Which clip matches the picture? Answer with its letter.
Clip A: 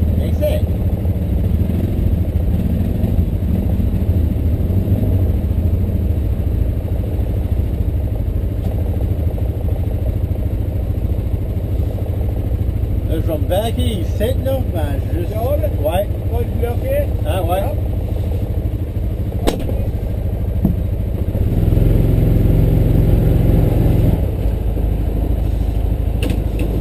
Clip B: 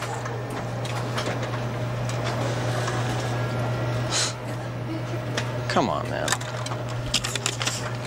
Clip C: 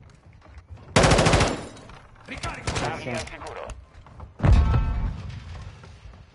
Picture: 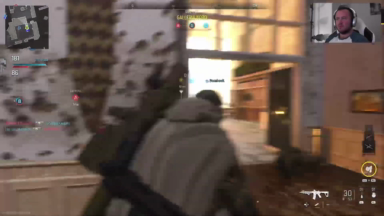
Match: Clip C